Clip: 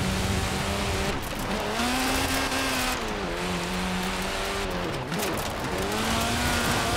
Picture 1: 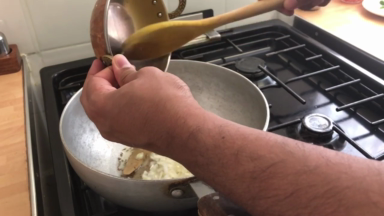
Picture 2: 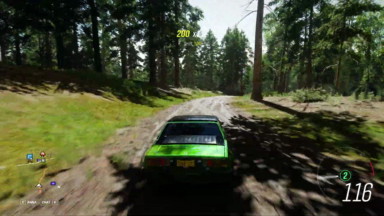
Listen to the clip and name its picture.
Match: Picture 2